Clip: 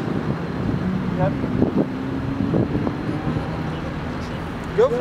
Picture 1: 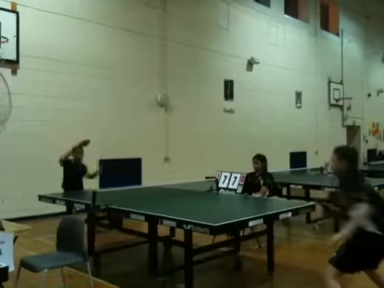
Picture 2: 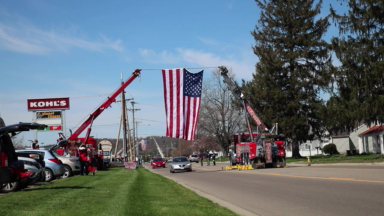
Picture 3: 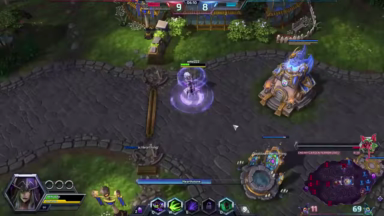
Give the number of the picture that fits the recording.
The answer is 2